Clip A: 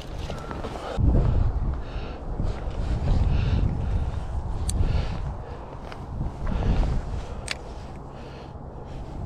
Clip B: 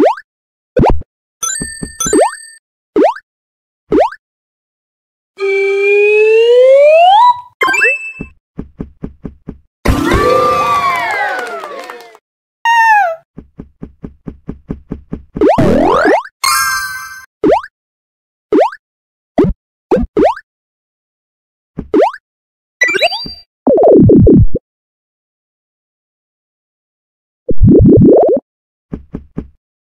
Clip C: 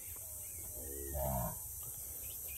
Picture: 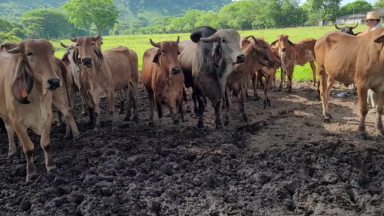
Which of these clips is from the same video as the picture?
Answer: C